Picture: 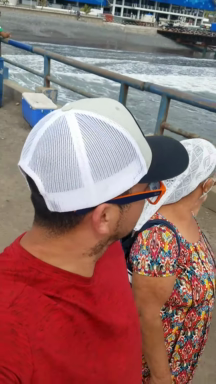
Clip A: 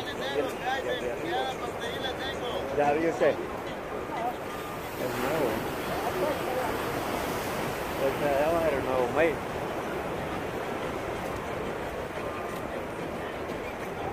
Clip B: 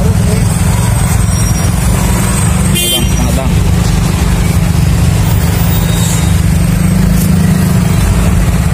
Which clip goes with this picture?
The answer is A